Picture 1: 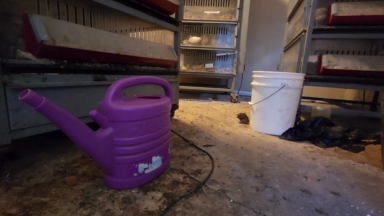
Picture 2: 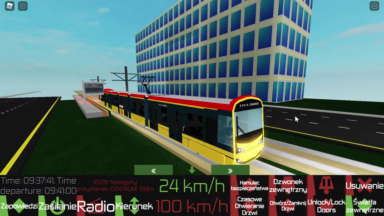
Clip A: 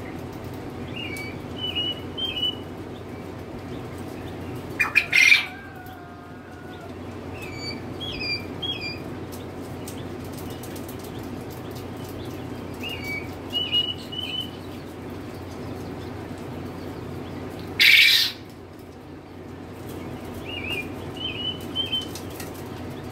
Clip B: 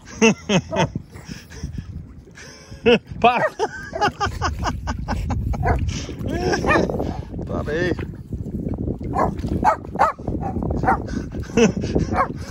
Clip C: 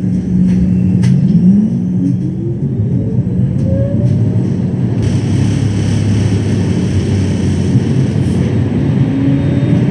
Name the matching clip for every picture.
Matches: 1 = A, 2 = C